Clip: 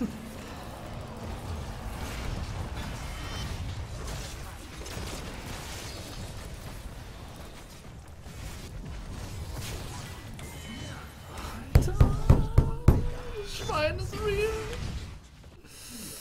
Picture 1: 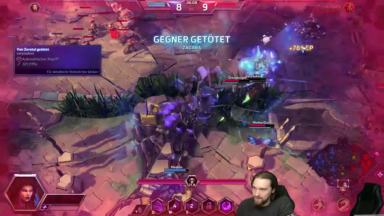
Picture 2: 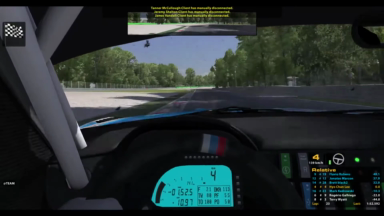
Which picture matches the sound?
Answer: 1